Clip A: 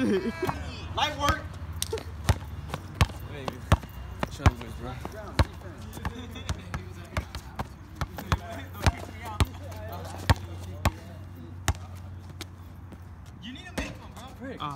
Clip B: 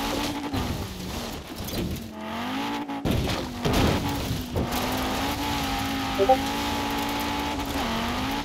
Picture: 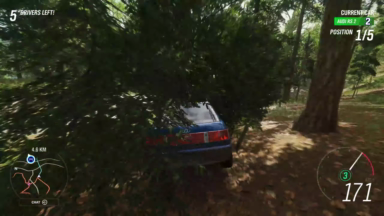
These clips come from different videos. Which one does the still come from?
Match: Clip B